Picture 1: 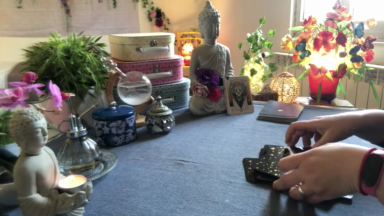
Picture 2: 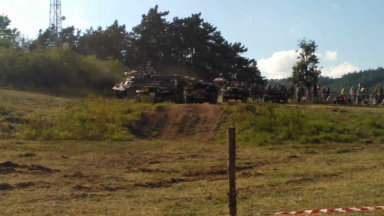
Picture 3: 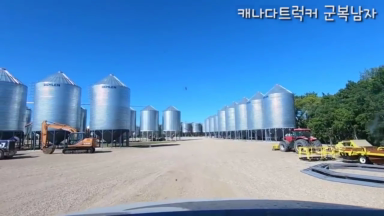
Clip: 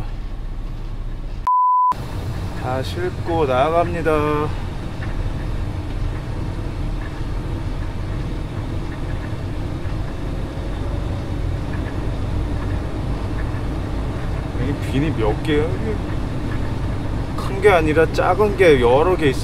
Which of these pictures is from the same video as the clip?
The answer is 3